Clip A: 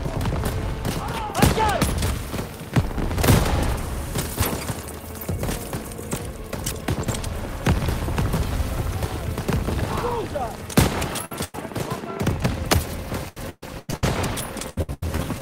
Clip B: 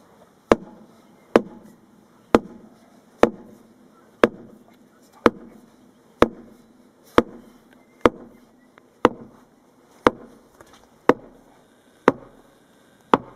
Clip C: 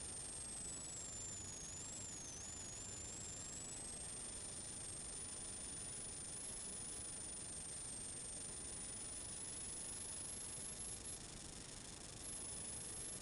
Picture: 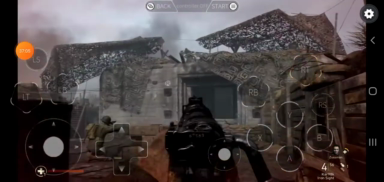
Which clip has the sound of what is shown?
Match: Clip A